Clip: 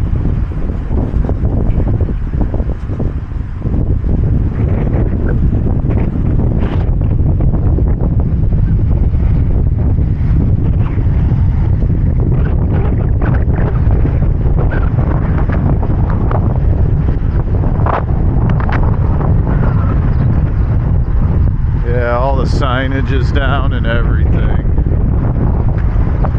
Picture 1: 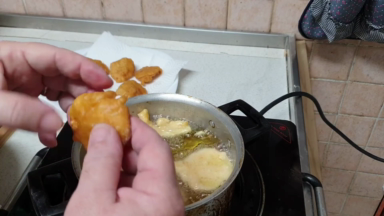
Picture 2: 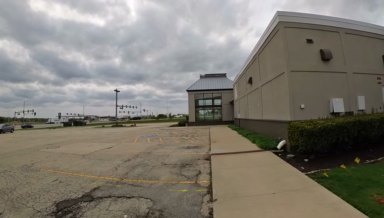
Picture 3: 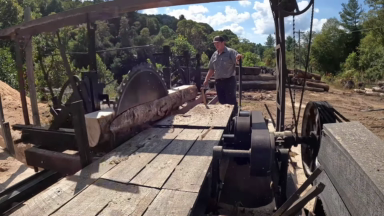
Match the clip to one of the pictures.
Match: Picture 2